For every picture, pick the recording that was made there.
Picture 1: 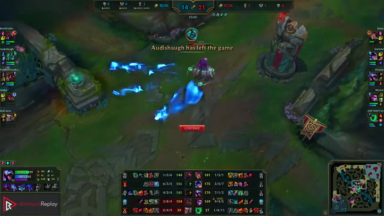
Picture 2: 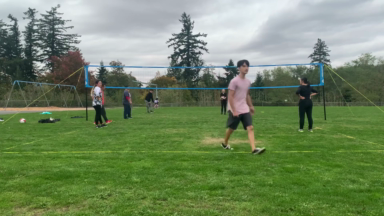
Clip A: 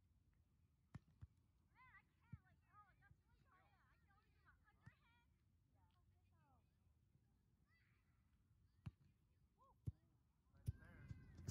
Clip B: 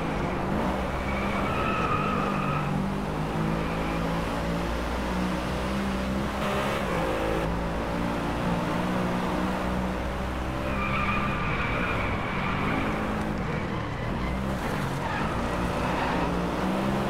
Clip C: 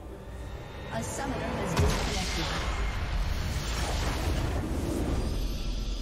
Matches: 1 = C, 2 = A